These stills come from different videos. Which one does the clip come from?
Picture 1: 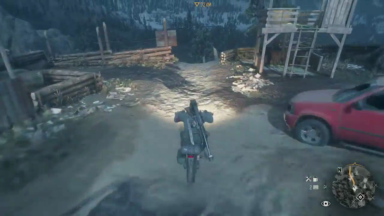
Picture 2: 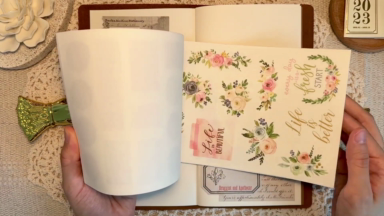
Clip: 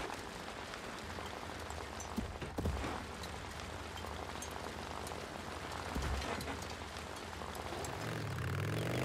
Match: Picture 1